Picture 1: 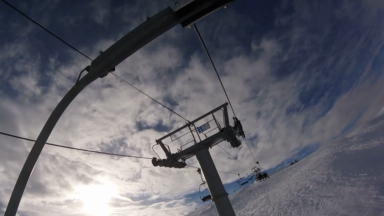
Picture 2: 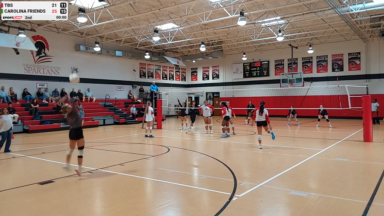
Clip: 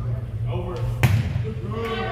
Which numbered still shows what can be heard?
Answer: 2